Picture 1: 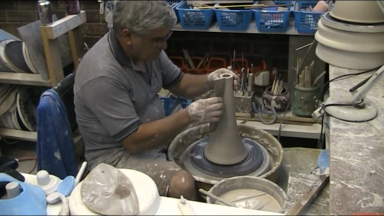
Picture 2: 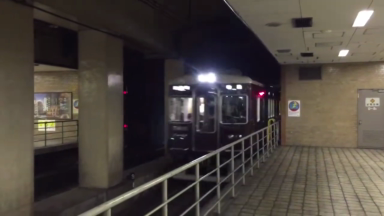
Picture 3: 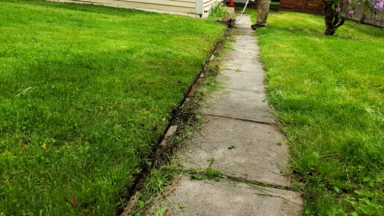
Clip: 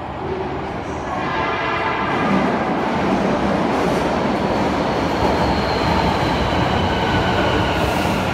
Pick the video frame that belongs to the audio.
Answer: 2